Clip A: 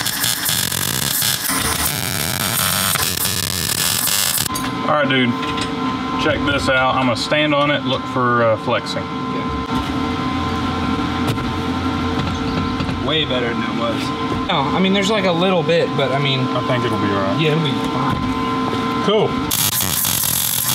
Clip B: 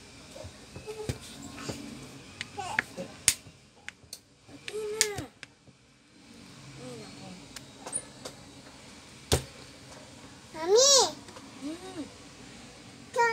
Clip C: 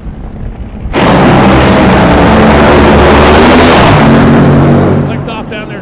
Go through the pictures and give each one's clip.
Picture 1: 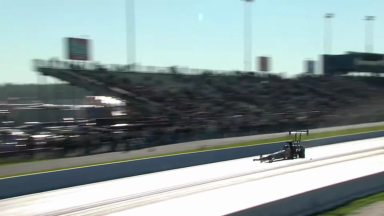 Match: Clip C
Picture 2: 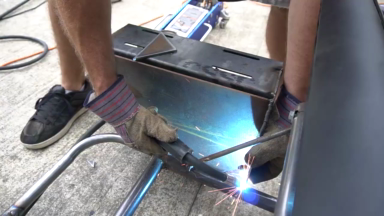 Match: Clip A